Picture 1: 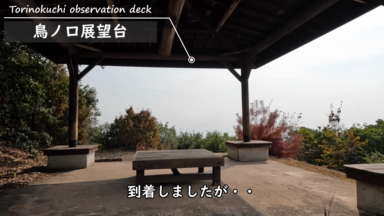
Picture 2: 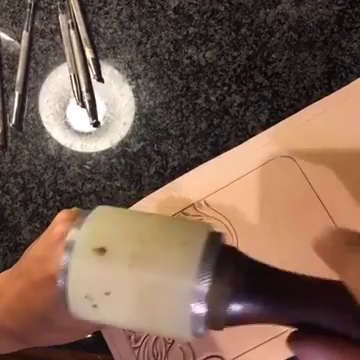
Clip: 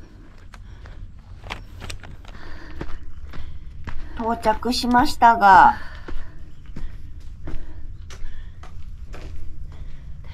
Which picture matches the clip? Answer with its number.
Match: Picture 1